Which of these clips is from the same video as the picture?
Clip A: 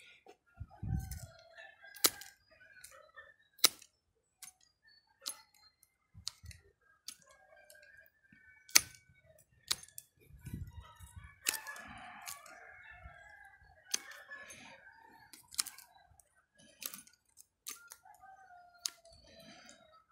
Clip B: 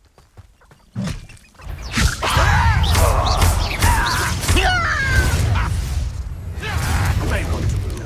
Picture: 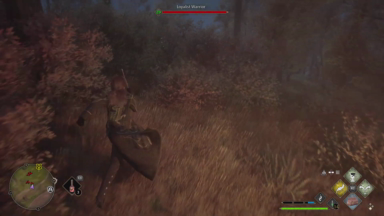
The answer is B